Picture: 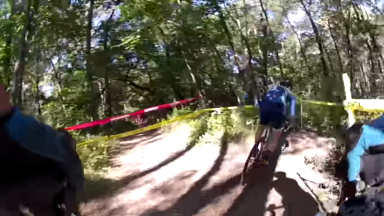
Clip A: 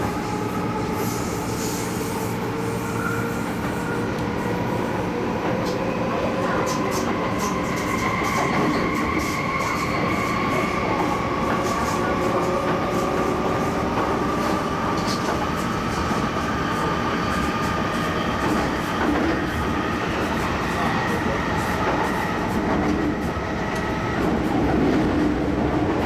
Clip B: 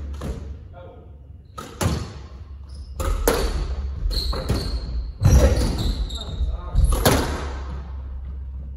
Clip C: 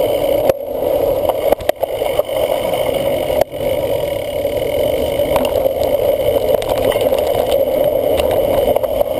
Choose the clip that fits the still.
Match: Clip C